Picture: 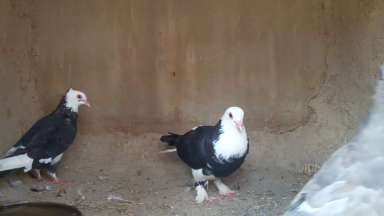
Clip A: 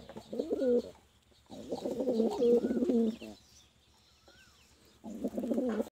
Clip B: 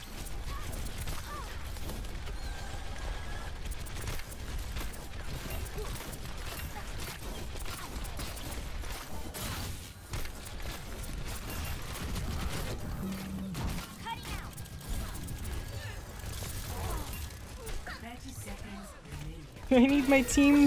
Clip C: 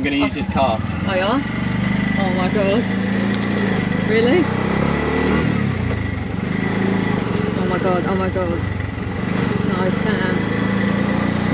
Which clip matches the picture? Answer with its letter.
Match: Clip A